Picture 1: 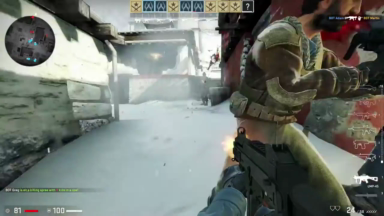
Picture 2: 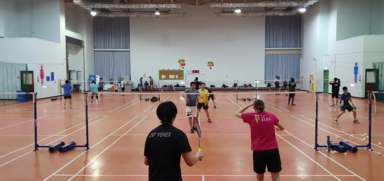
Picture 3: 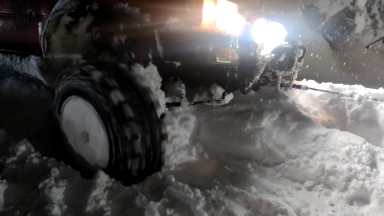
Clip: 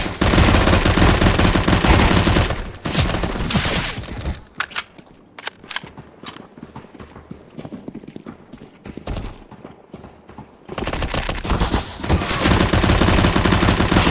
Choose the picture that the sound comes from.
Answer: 1